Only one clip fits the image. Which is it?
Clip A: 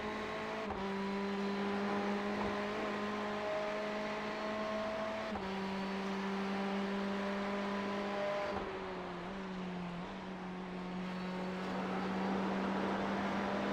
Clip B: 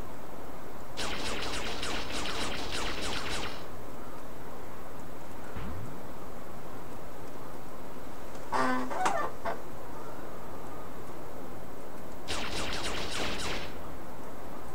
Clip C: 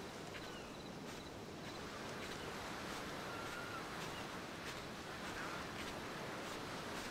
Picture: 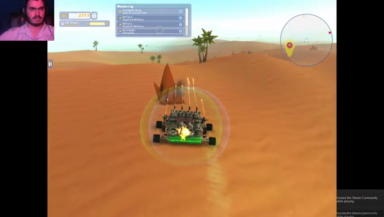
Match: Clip B